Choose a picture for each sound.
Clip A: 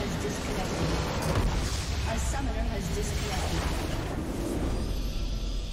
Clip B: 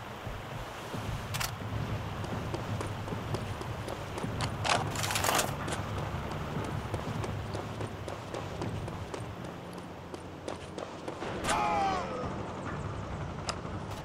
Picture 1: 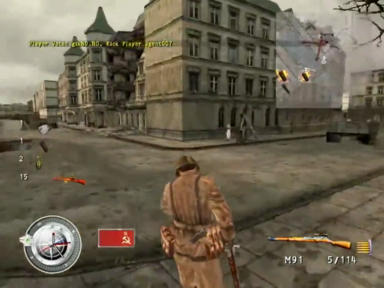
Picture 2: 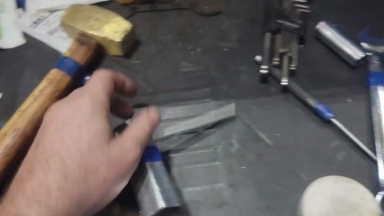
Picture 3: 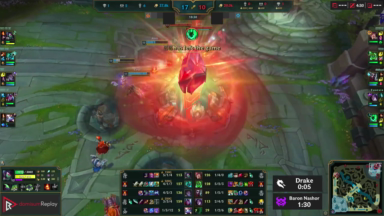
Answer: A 3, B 1